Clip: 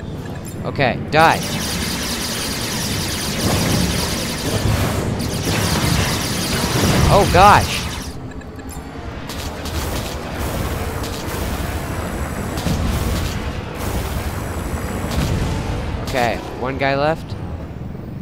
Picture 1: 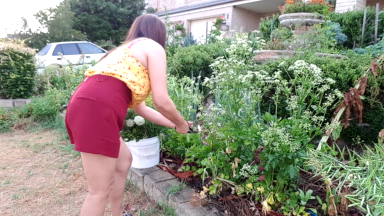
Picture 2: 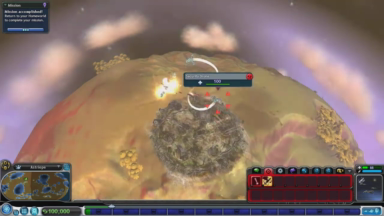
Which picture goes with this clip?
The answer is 2